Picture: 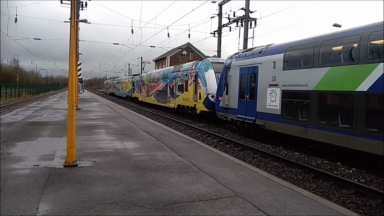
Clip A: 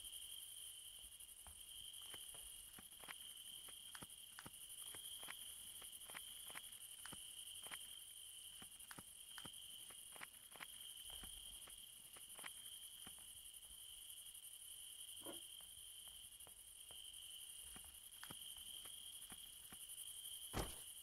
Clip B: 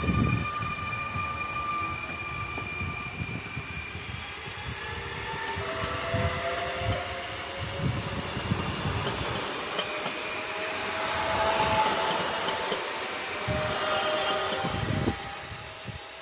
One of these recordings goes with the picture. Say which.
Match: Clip B